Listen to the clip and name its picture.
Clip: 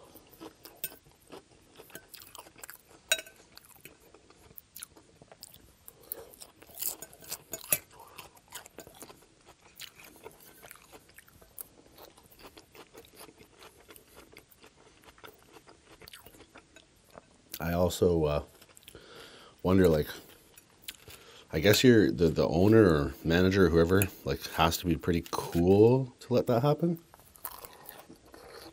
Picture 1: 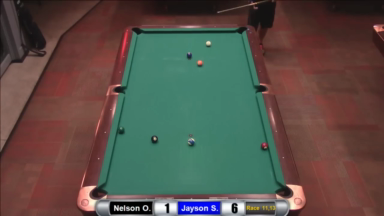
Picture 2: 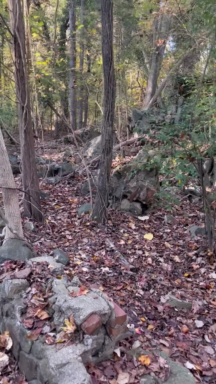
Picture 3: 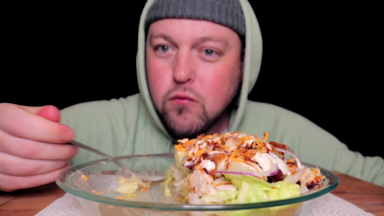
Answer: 3